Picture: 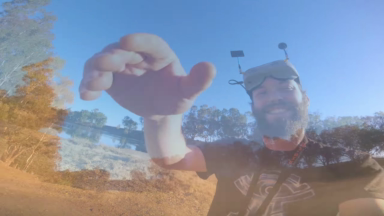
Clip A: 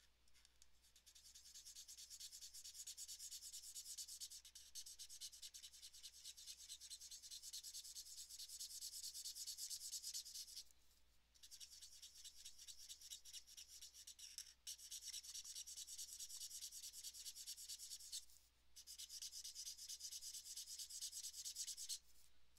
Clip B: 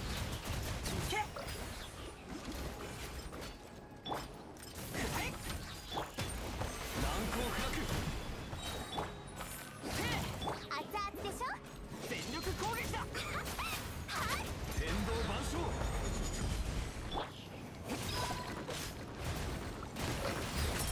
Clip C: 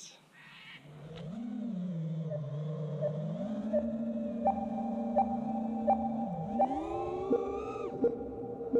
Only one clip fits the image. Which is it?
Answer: C